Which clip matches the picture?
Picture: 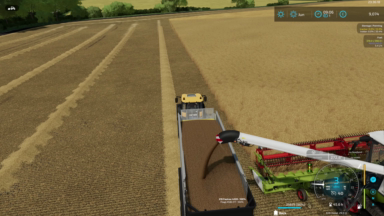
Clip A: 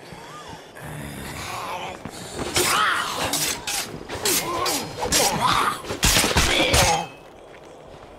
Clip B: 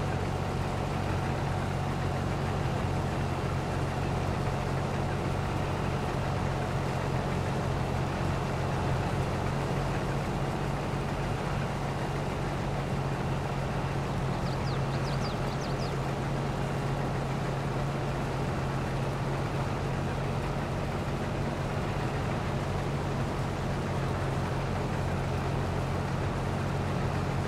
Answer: B